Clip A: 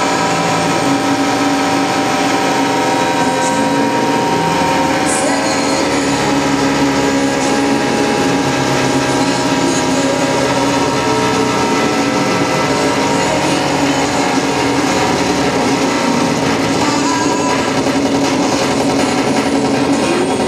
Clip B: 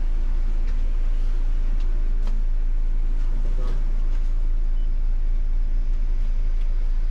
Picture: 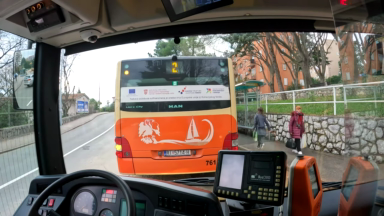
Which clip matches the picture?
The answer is B